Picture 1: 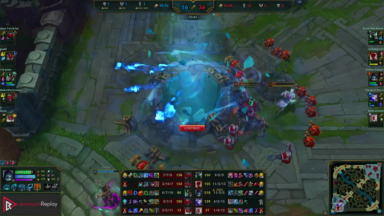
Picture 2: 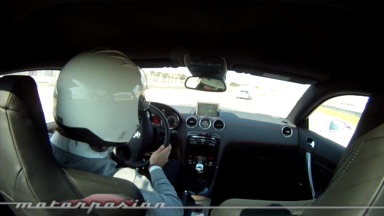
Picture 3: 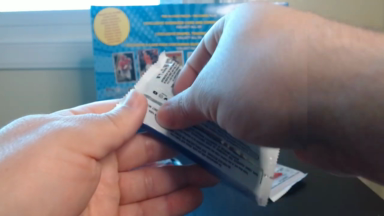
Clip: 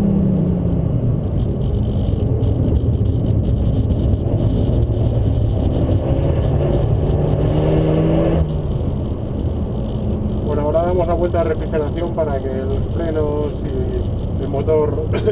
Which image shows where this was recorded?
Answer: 2